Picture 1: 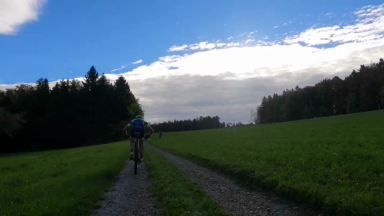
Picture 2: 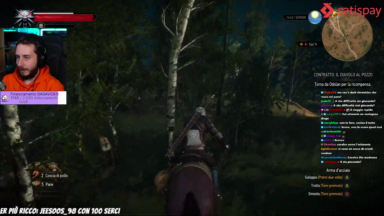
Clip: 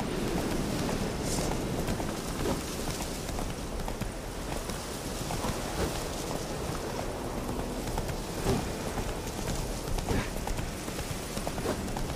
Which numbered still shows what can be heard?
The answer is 2